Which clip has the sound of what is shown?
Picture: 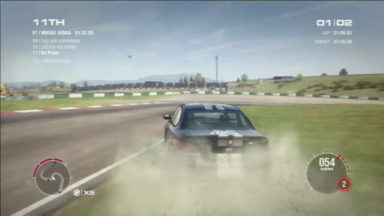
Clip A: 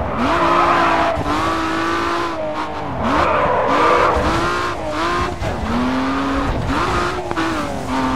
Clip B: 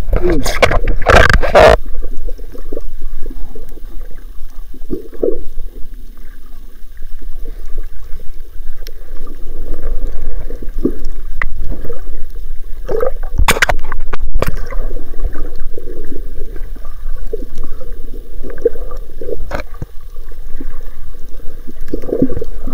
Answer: A